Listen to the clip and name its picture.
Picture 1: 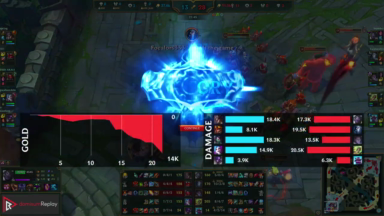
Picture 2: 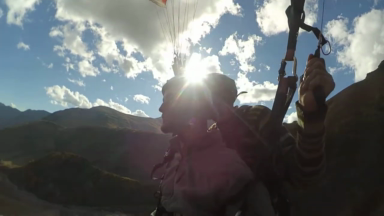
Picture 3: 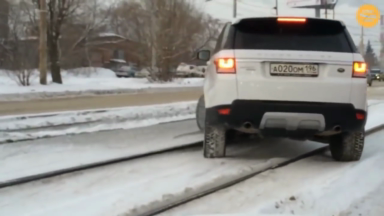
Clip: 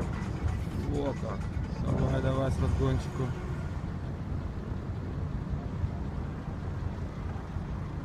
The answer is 3